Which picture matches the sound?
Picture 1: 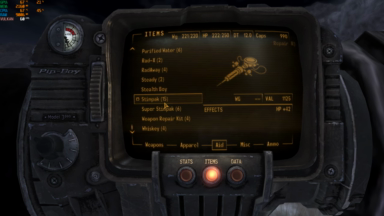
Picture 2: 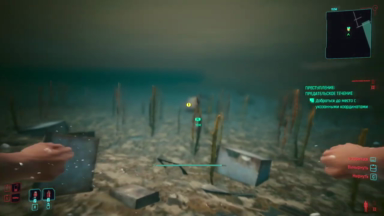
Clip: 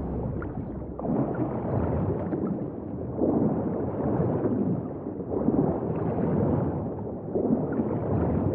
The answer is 2